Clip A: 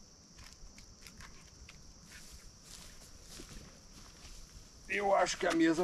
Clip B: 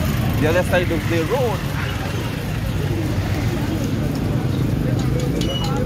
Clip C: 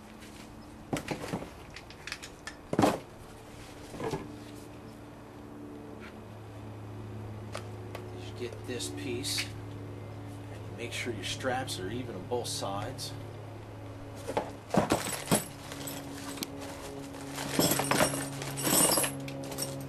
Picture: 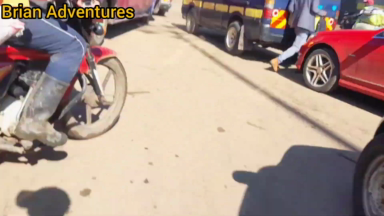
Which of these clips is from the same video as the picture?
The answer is B